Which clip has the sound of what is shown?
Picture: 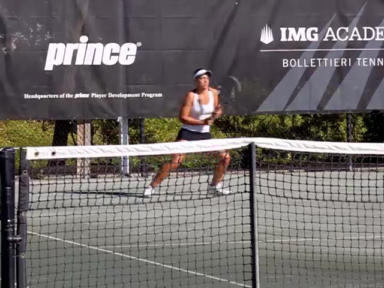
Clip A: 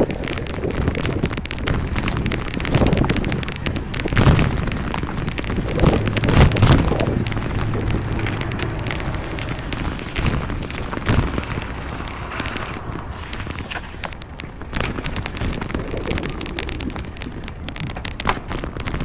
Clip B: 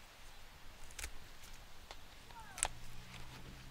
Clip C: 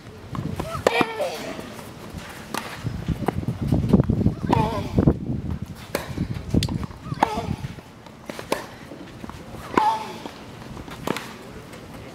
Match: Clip C